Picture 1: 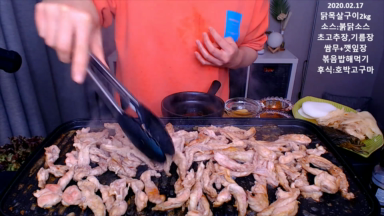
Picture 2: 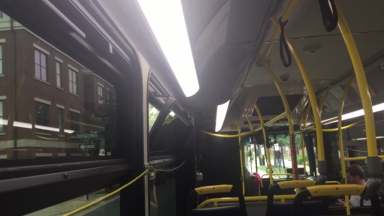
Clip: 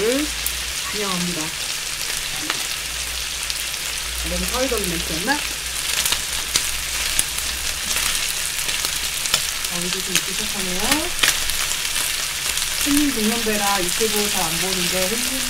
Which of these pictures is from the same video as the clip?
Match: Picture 1